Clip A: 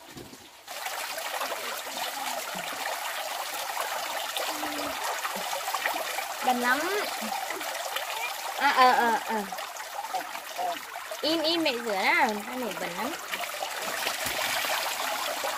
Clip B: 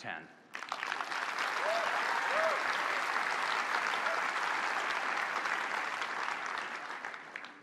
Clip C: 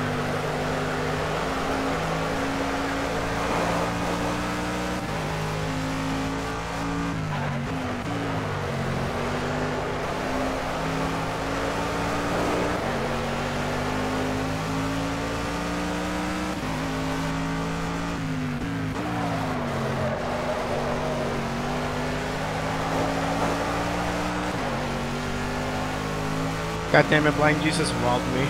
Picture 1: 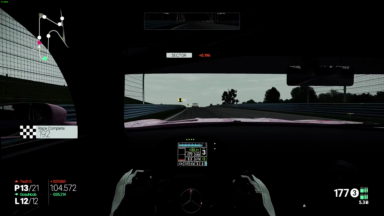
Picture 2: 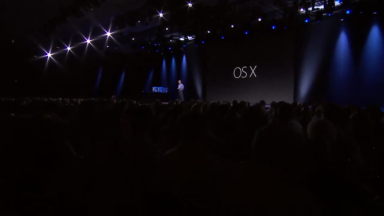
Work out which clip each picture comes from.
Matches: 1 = C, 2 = B